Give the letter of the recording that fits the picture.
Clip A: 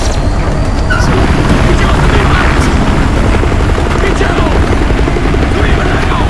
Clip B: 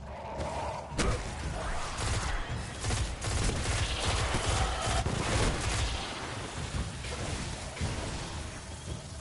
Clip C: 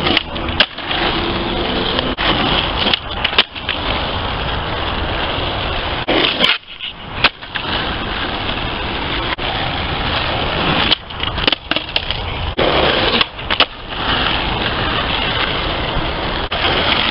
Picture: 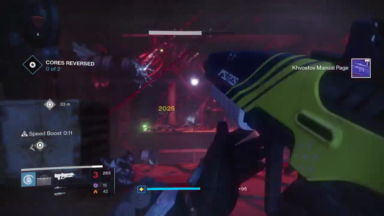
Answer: B